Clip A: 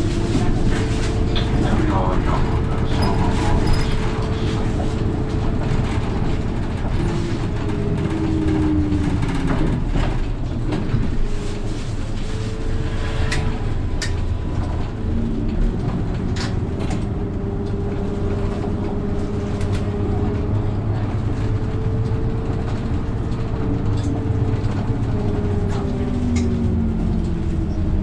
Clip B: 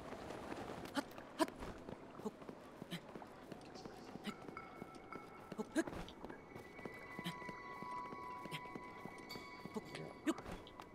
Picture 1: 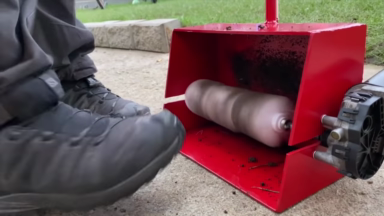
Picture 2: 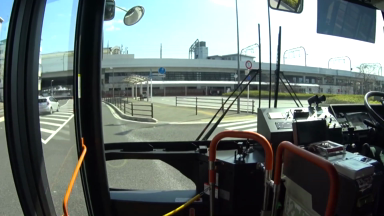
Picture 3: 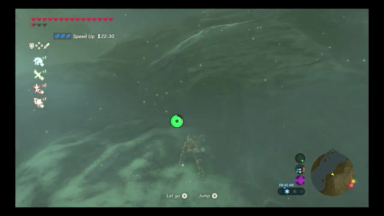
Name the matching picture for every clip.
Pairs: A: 2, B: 3